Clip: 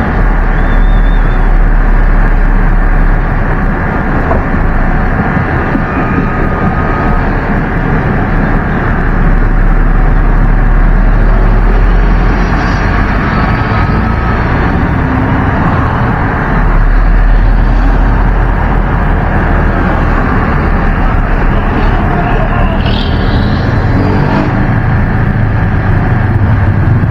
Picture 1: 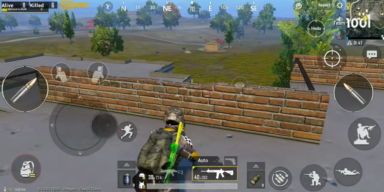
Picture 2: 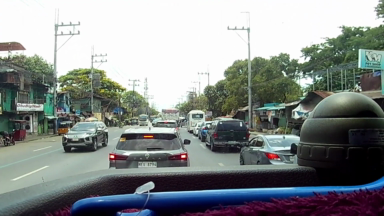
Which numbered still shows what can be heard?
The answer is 2